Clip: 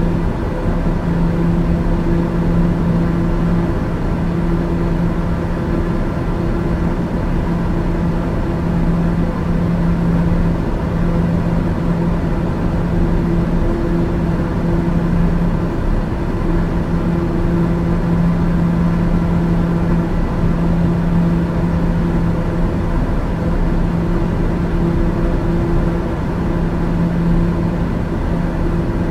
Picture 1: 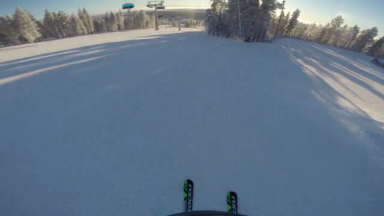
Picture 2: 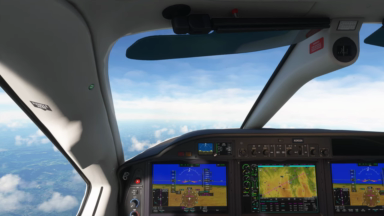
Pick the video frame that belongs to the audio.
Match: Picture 2